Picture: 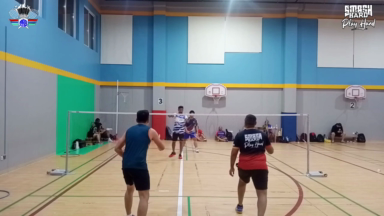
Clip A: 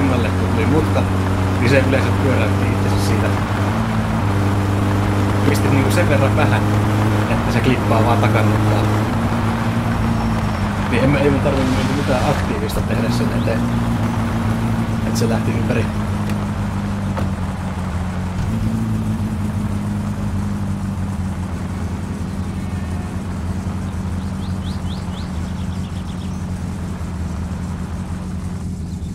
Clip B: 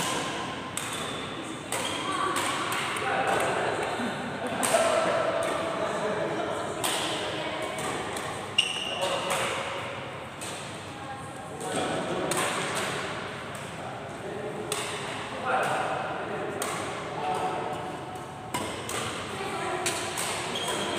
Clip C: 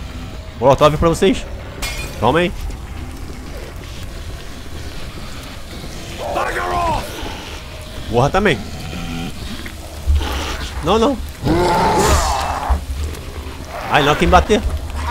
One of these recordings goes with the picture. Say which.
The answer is B